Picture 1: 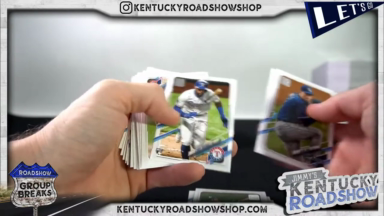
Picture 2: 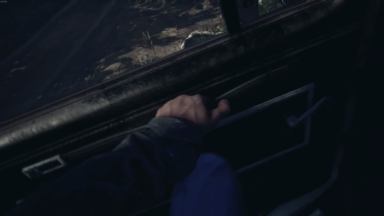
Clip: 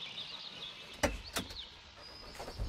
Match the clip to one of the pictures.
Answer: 2